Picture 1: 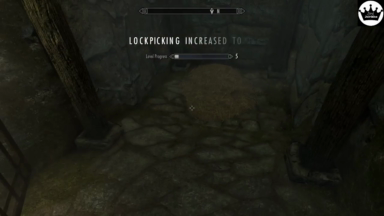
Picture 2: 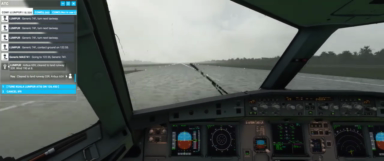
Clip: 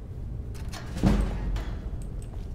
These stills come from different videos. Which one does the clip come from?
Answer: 1